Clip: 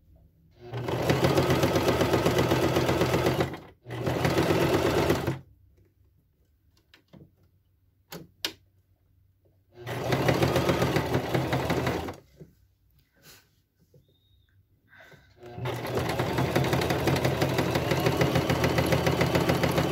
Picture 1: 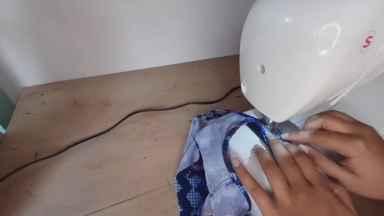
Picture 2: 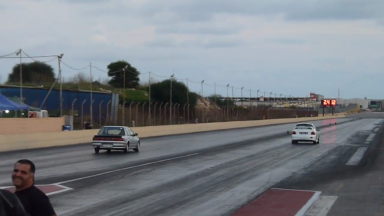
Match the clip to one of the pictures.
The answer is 1